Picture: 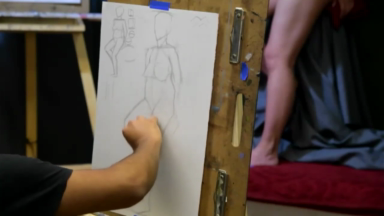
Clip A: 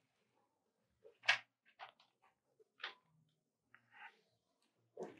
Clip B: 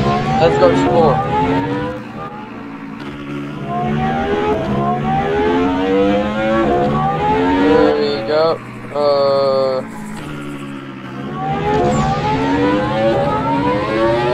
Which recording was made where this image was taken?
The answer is A